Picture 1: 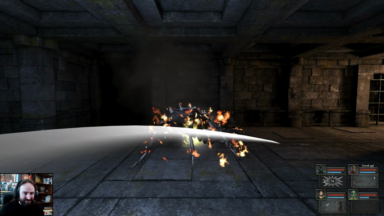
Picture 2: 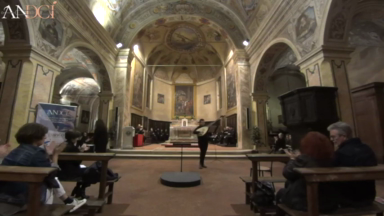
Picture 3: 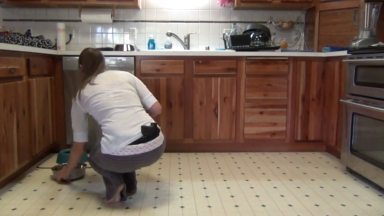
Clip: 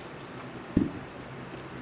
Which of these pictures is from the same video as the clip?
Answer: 3